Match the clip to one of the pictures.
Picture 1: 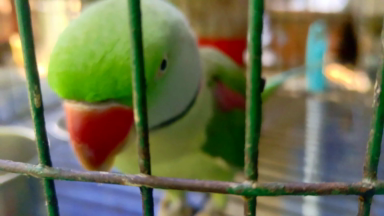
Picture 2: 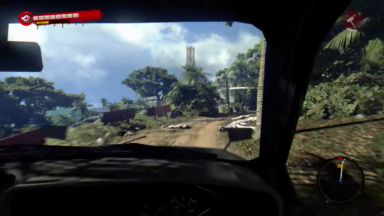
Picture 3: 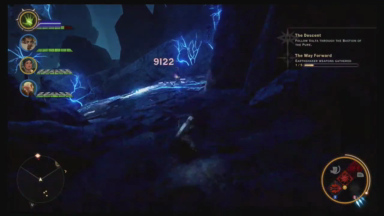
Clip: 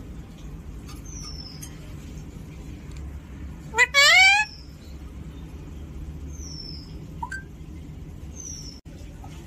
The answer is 1